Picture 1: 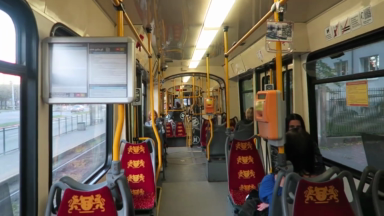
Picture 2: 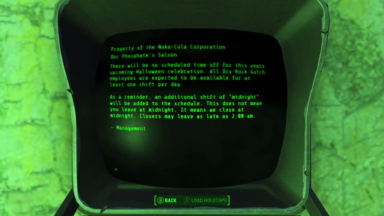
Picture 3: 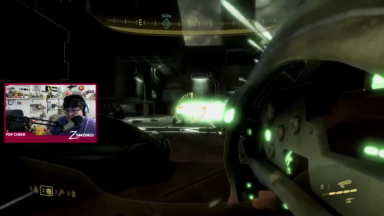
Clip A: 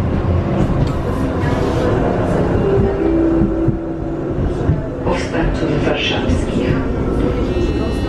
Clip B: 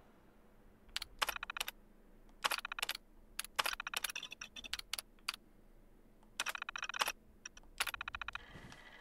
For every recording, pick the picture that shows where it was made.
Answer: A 1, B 2